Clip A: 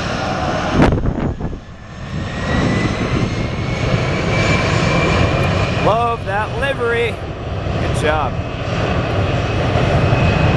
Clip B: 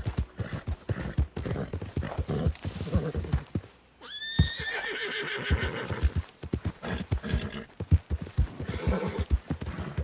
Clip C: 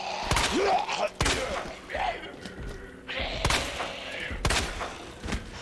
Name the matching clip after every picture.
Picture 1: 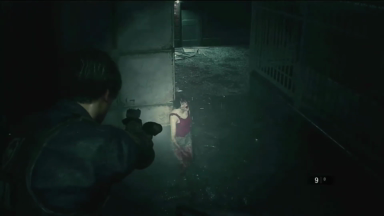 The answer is C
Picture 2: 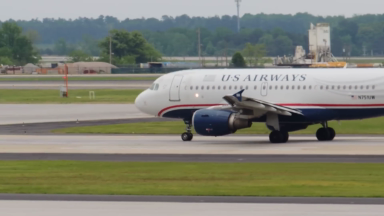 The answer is A